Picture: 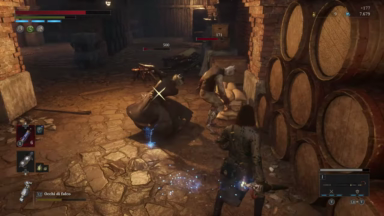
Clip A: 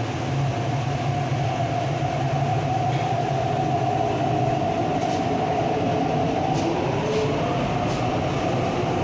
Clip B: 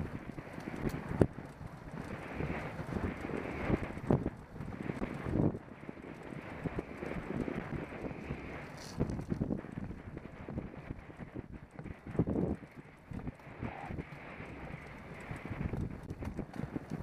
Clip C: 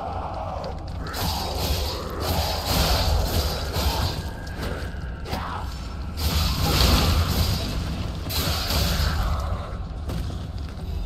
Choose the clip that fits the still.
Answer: C